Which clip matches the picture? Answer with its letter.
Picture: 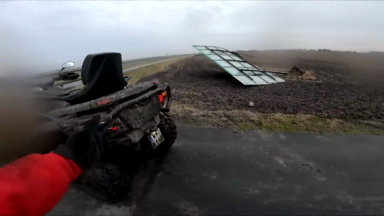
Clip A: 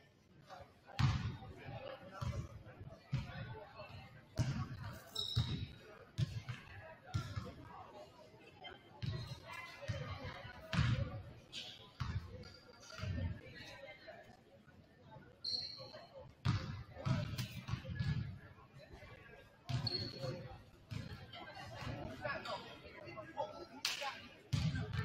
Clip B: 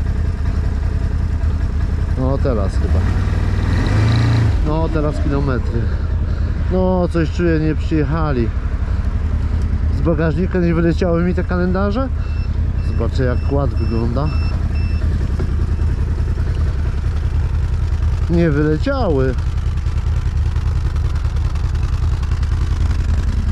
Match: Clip B